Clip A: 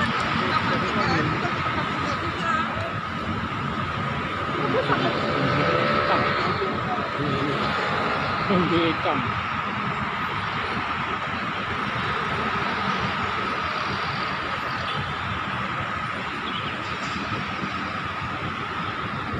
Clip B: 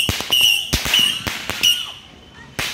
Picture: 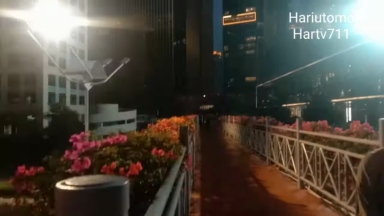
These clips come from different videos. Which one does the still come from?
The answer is A